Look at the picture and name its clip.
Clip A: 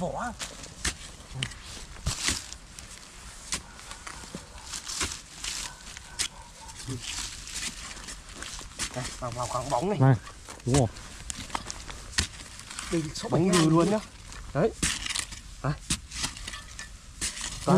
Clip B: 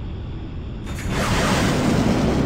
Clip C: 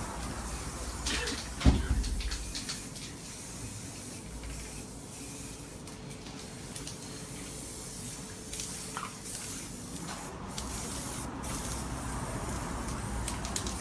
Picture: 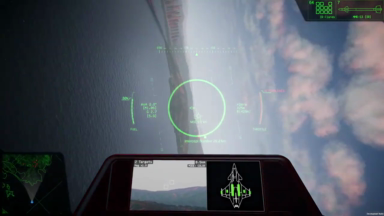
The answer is B